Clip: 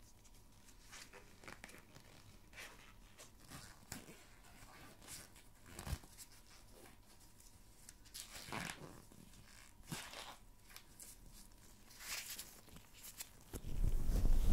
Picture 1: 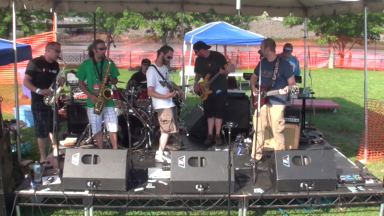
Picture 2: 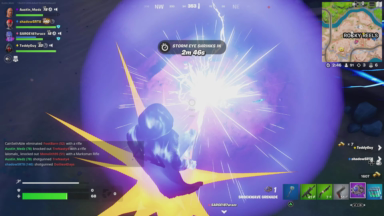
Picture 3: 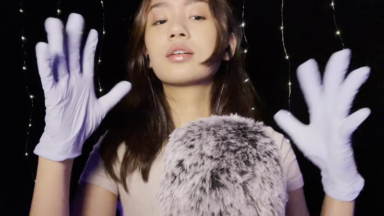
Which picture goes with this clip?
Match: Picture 3